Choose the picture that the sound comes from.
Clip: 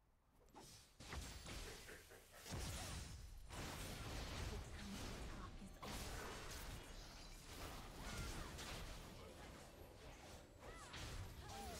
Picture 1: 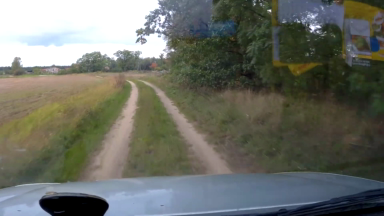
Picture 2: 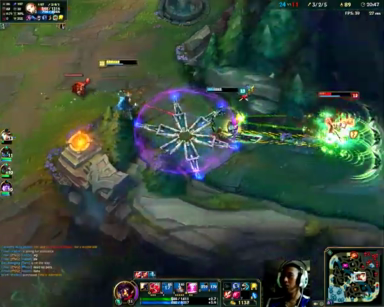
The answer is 2